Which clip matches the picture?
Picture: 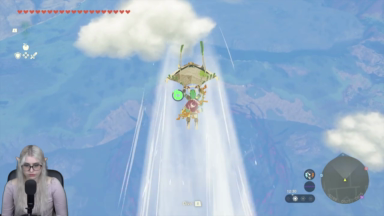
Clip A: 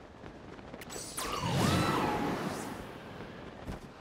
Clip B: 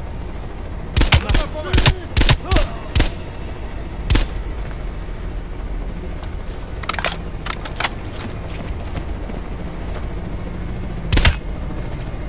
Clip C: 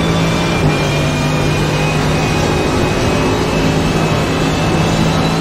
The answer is A